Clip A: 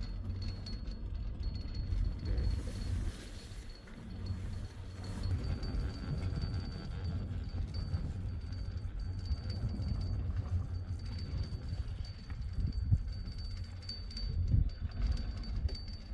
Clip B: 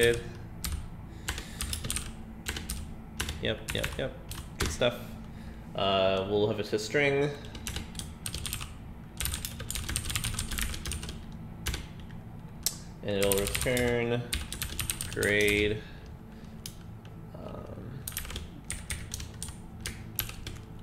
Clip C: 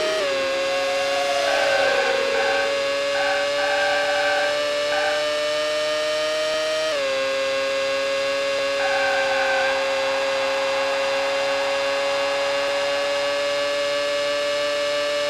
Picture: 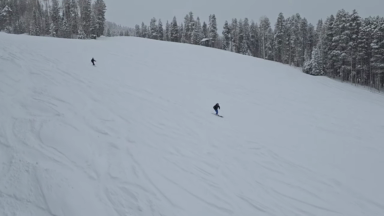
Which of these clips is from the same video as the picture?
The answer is A